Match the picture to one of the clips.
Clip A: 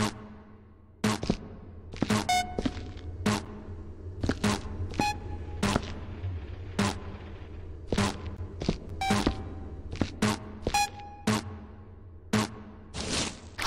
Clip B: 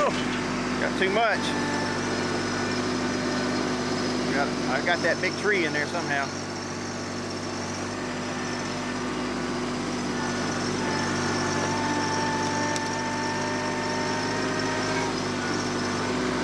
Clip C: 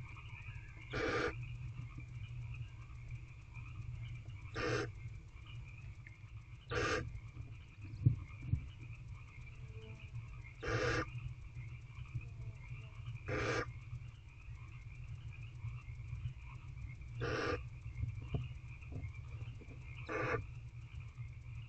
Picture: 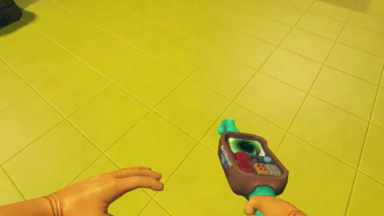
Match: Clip A